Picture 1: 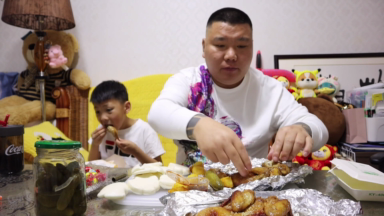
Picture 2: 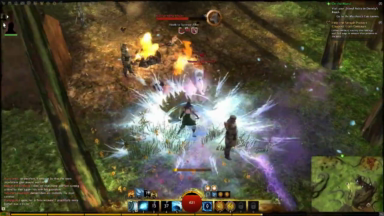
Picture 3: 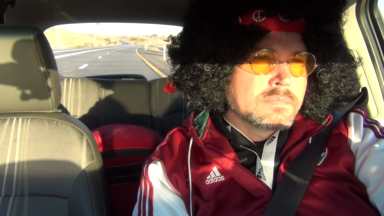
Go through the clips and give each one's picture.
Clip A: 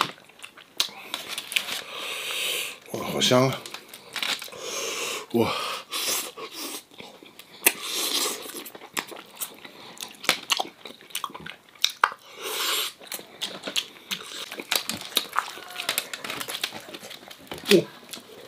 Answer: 1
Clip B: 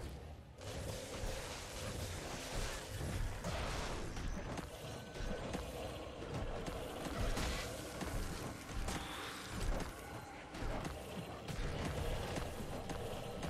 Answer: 2